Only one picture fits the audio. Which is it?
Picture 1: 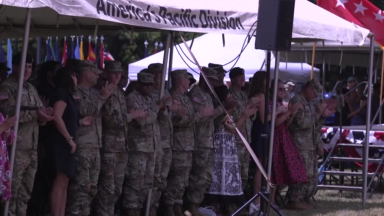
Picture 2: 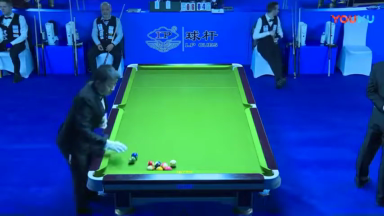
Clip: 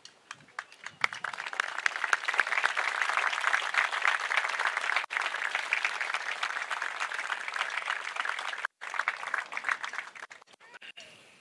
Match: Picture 1